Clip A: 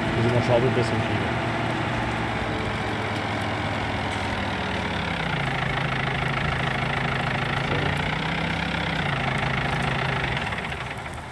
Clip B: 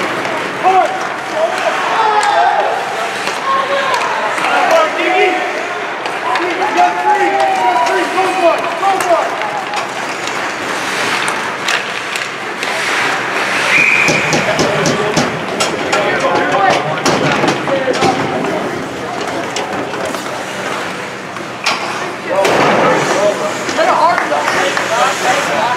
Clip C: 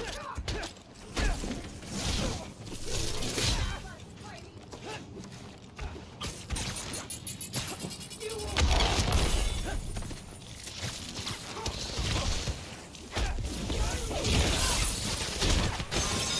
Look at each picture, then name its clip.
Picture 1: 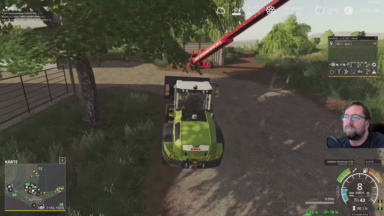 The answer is A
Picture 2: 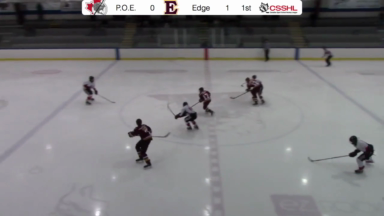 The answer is B